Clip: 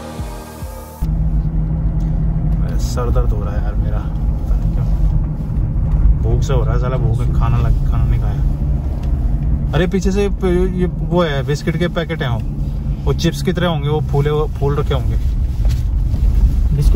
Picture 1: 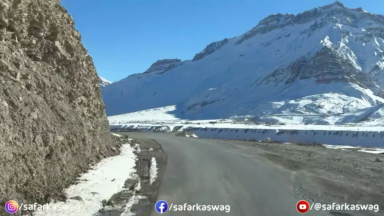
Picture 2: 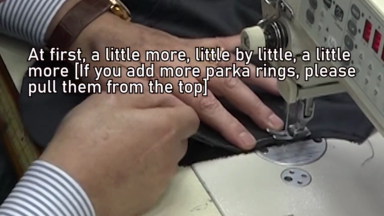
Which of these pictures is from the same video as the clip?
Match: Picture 1